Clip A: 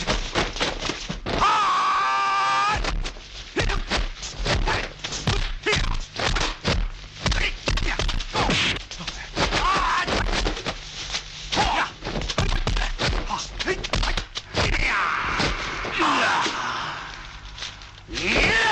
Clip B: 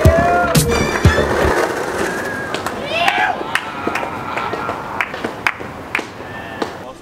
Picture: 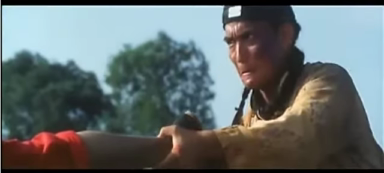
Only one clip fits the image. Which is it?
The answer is A